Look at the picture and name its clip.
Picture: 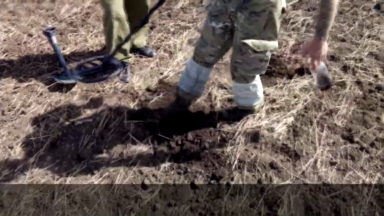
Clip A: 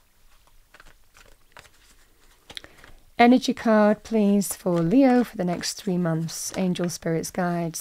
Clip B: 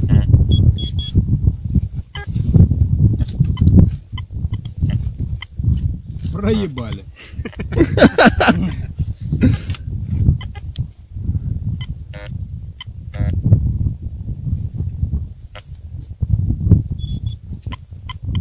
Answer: B